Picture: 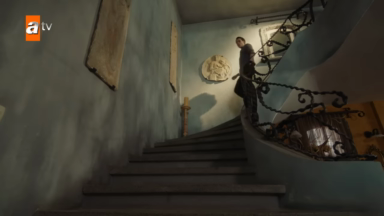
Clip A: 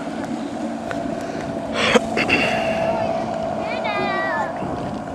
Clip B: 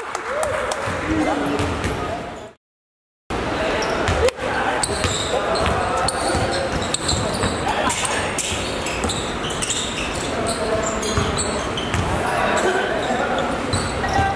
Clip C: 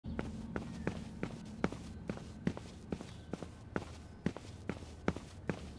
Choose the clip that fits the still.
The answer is C